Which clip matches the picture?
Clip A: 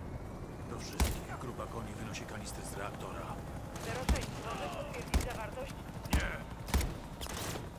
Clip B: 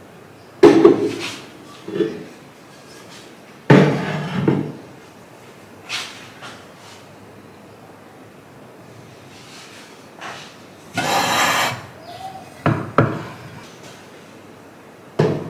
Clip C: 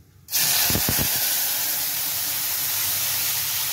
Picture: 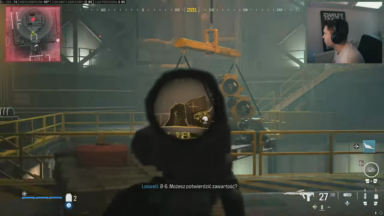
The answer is A